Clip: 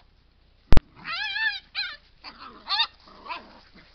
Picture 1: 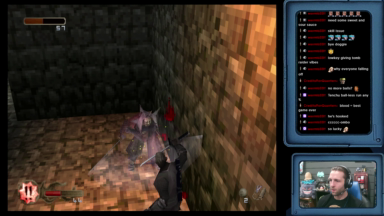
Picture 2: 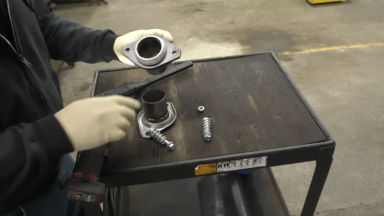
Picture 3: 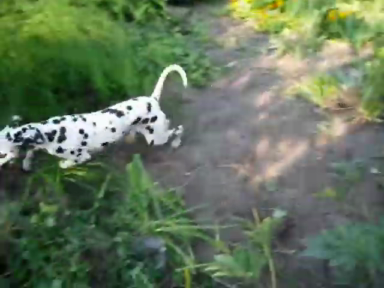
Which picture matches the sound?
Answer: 3